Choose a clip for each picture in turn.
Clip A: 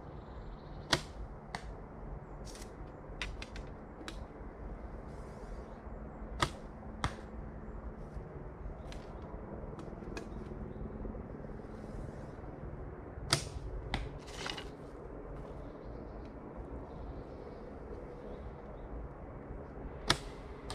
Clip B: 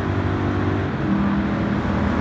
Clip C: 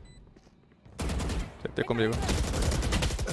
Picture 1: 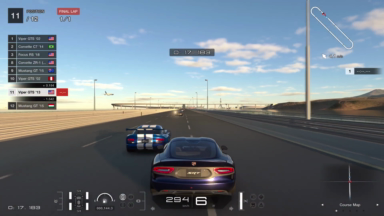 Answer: B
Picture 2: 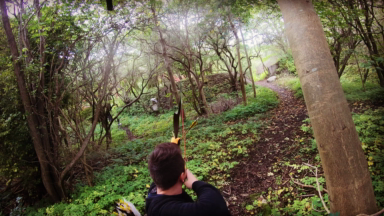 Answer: A